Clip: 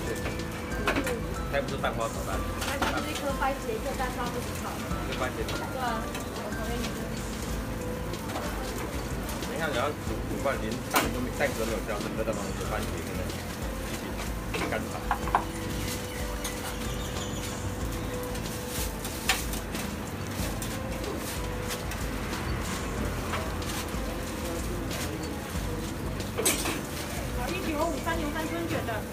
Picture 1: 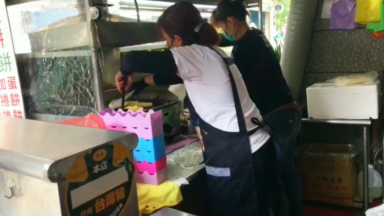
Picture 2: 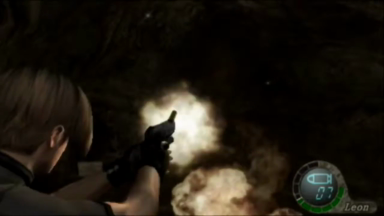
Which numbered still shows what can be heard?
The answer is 1